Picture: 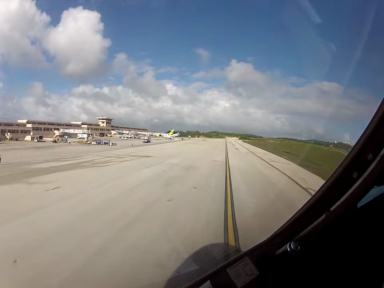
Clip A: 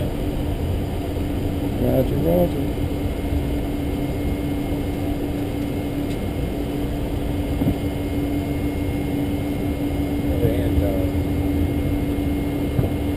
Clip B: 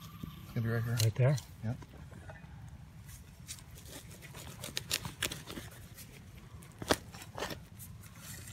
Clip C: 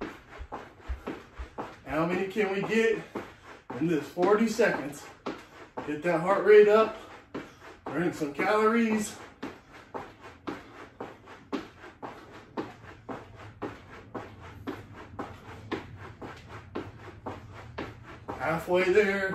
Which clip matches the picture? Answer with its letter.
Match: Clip A